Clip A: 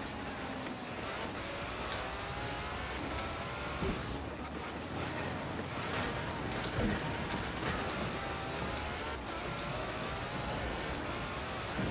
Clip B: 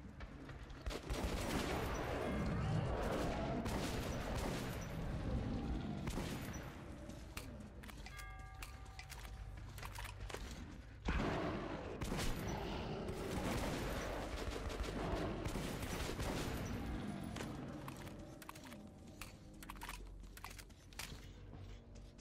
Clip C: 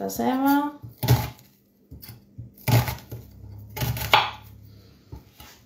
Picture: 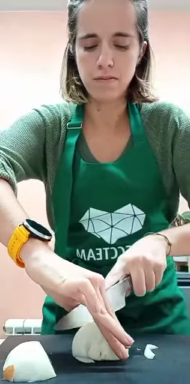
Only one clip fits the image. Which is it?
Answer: C